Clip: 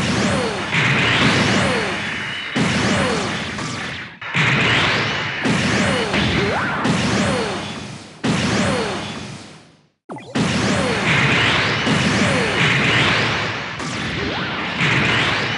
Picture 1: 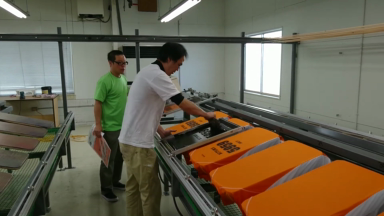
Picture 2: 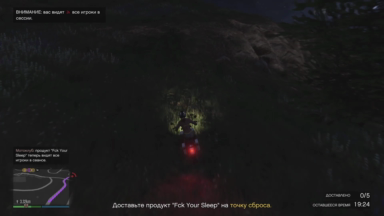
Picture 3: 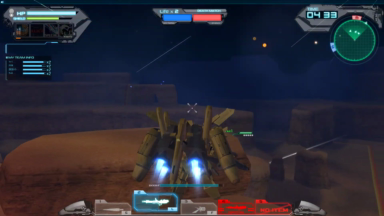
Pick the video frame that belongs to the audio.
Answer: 3